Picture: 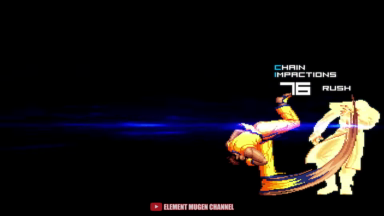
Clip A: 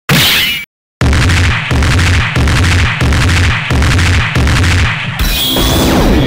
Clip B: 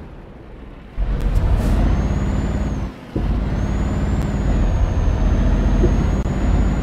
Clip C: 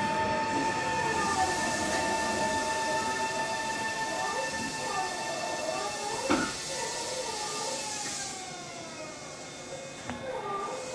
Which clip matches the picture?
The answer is A